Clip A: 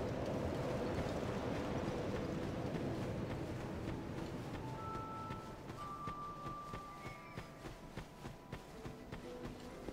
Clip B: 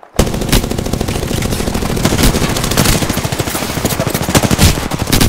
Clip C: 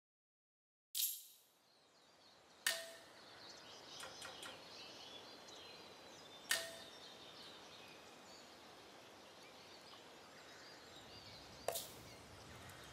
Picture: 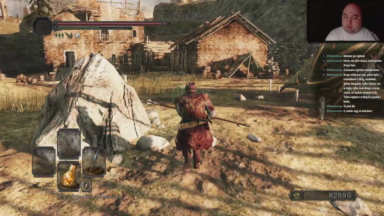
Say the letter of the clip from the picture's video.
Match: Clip A